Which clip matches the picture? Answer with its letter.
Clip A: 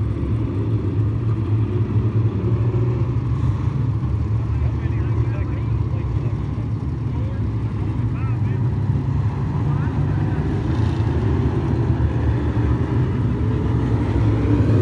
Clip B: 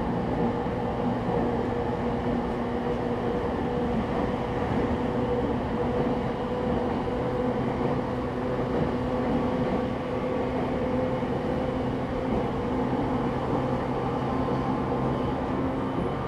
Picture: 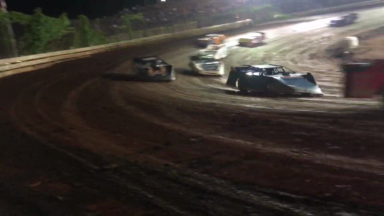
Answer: A